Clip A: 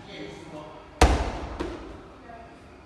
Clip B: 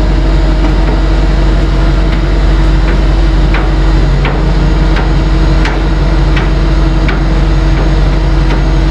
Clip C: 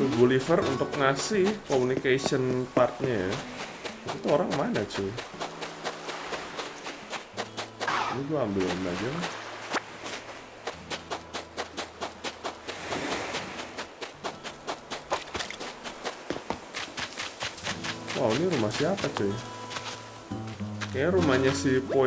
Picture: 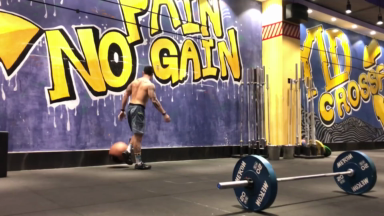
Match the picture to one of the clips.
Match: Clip A